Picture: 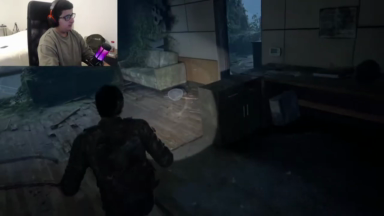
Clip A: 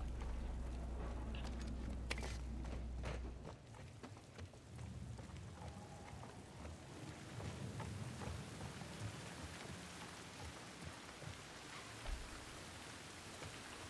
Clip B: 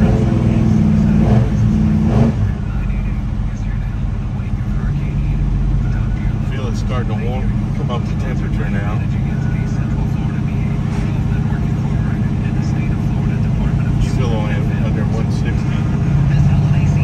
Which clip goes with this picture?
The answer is A